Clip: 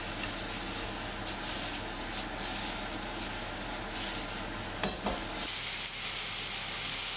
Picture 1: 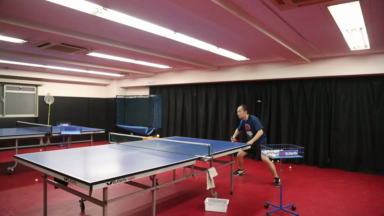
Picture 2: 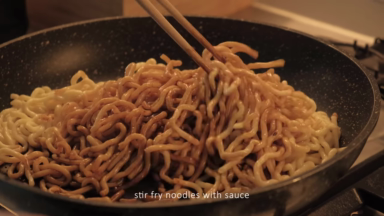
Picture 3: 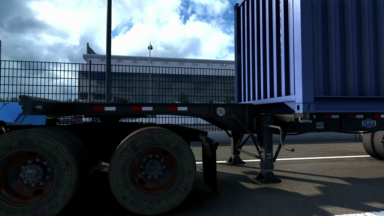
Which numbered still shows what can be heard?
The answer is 2